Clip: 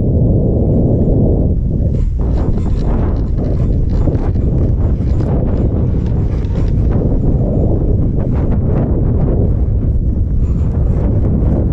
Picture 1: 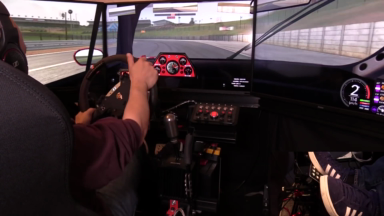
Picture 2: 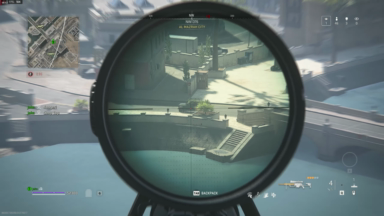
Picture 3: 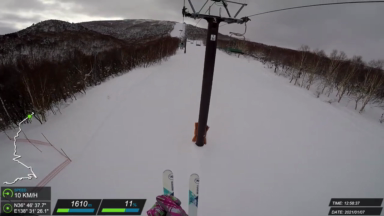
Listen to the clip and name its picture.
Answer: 3